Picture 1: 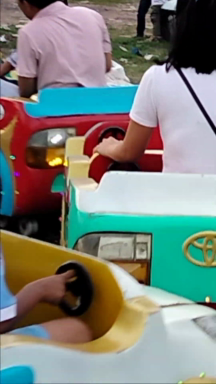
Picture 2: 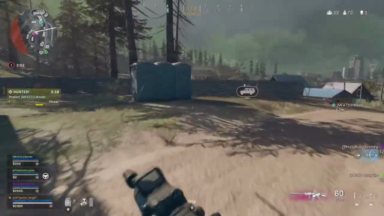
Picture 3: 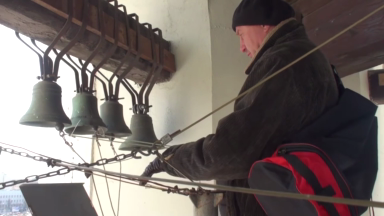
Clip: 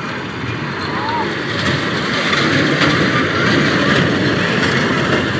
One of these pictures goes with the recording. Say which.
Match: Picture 1